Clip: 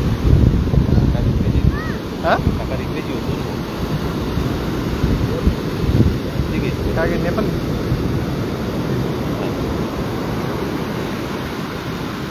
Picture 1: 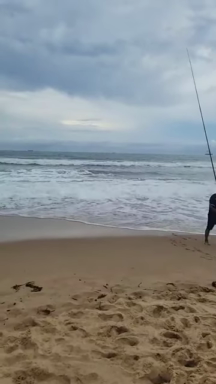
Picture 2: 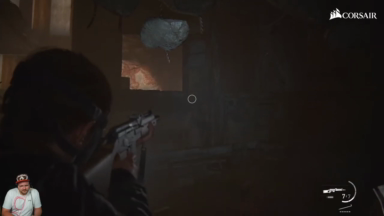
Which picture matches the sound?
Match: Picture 1